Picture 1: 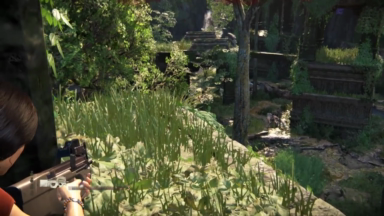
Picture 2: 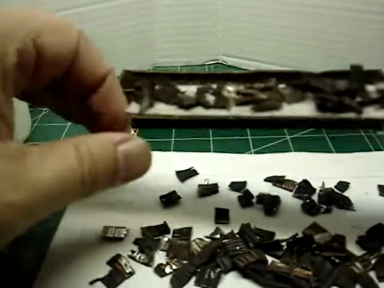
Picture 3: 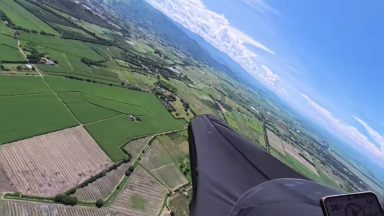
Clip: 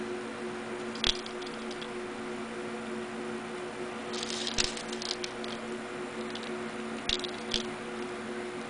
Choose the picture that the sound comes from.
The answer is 2